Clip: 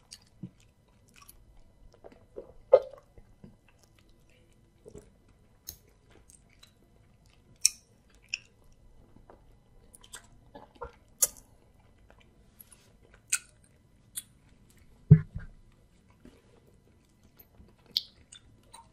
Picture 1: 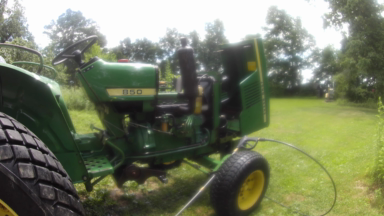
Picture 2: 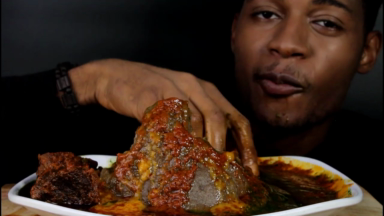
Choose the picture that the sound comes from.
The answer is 2